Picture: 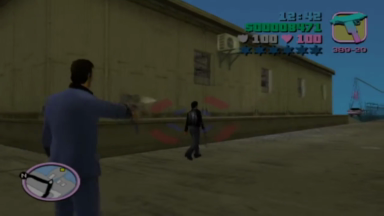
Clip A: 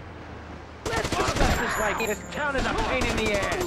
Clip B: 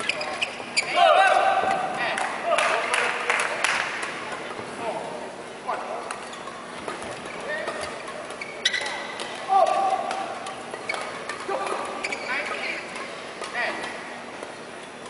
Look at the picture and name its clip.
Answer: A